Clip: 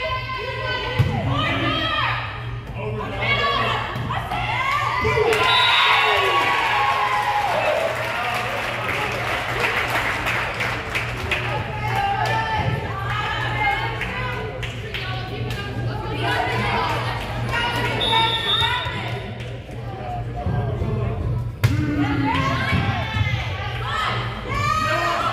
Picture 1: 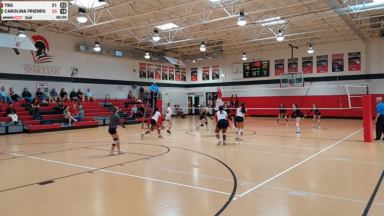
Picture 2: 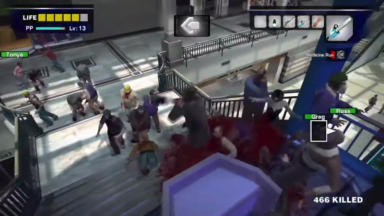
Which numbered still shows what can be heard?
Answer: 1